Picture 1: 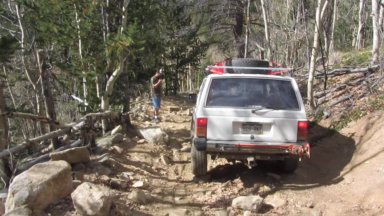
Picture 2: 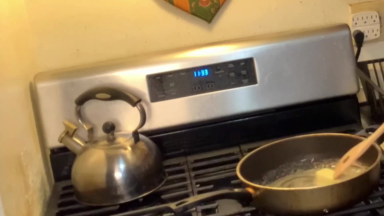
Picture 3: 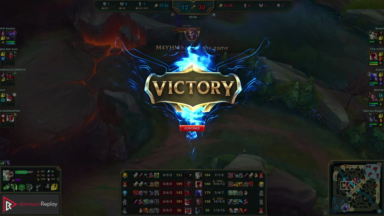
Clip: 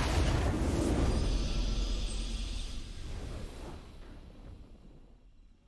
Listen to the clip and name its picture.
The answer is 3